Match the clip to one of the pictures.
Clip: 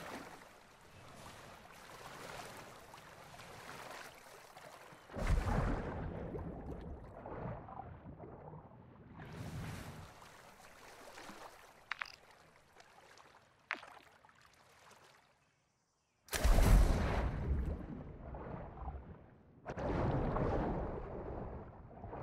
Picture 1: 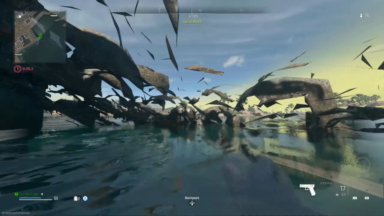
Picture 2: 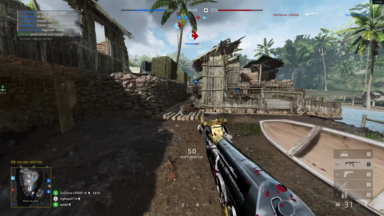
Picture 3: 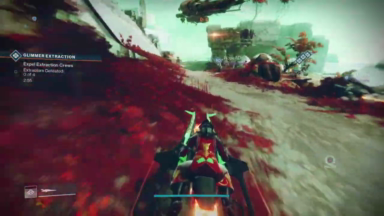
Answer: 1